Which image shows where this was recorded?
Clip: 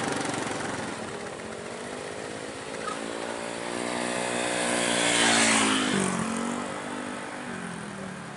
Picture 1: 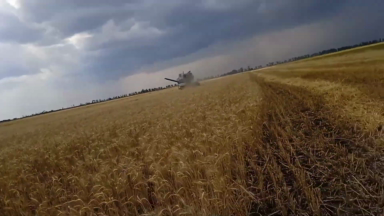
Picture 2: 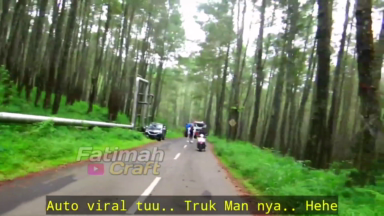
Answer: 2